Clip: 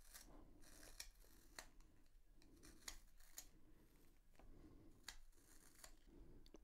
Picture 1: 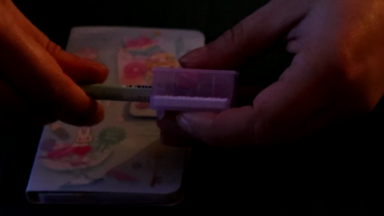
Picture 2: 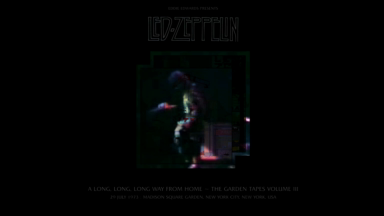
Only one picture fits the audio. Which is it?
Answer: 1